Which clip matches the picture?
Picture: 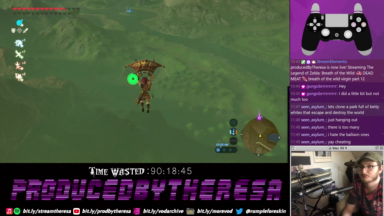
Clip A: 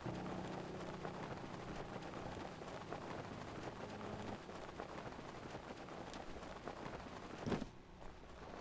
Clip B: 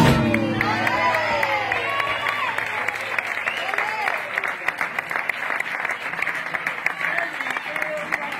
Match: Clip A